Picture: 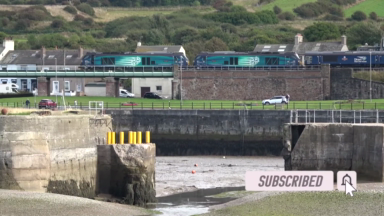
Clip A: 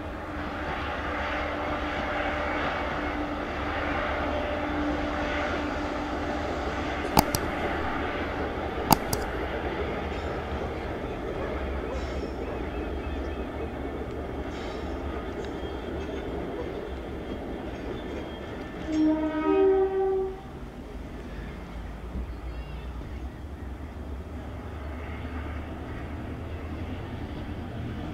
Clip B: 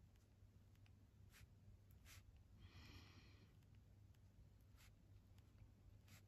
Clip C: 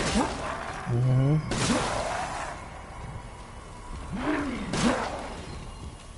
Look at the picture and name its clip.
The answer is A